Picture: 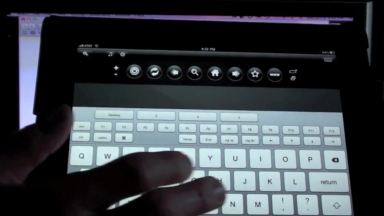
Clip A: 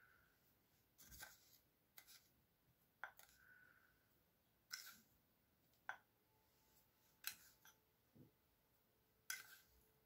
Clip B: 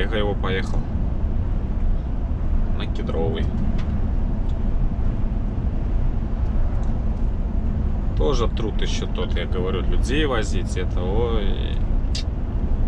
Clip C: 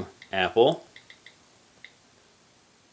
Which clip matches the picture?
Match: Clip C